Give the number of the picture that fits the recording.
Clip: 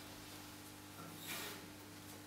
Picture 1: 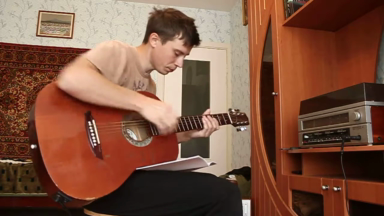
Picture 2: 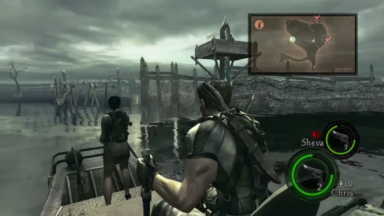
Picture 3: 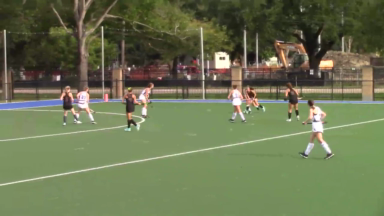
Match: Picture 1